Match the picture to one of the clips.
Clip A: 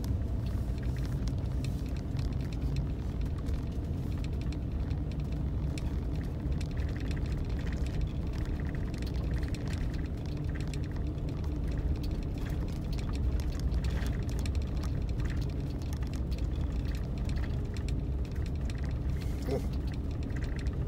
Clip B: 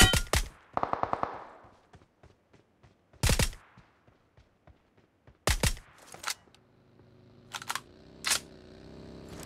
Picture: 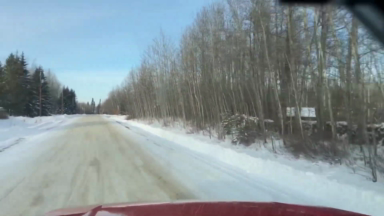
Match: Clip A